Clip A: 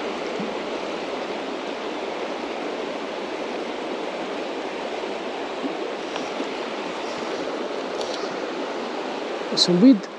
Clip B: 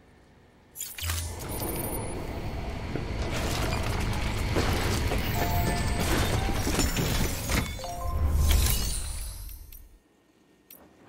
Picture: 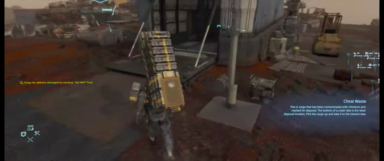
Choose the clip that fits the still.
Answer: B